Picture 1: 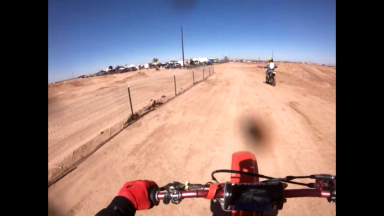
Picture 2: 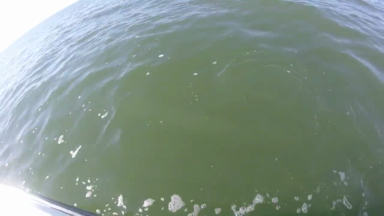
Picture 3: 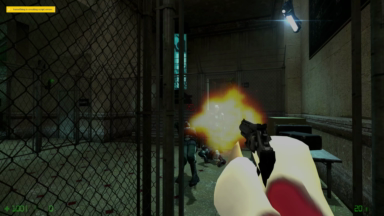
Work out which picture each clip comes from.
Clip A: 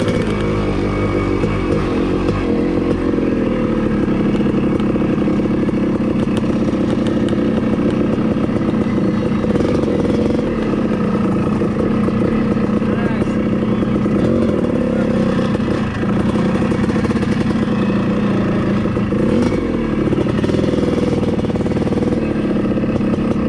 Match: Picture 1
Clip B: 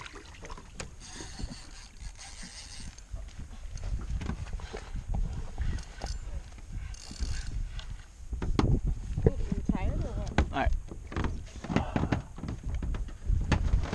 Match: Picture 2